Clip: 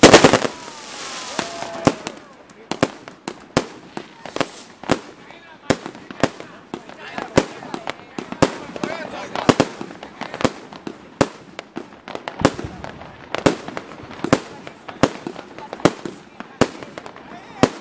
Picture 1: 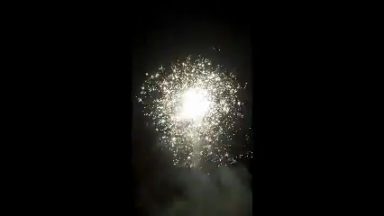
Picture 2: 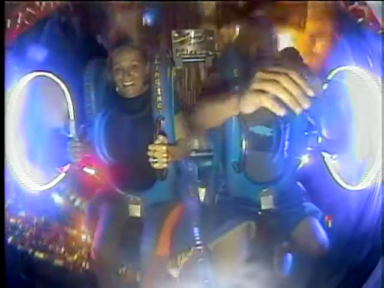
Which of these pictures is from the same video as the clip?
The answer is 1